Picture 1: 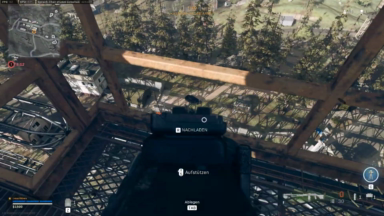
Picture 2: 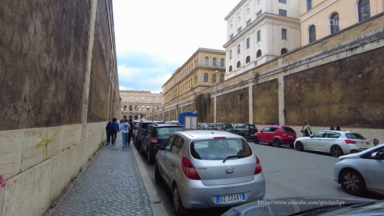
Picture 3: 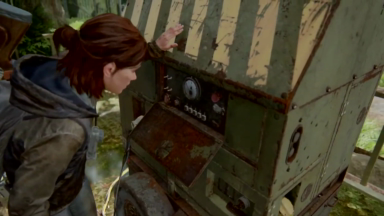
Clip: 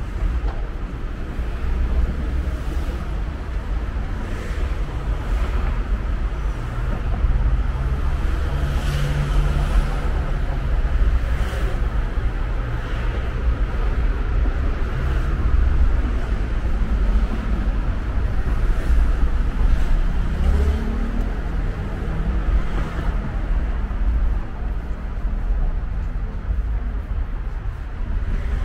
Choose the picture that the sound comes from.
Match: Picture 2